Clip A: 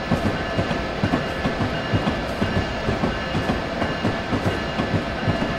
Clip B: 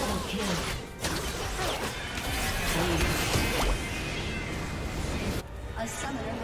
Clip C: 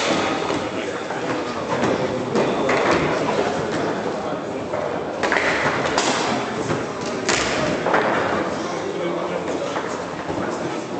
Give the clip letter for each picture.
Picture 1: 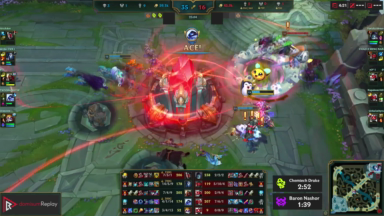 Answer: B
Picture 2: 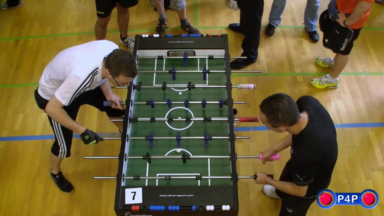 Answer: C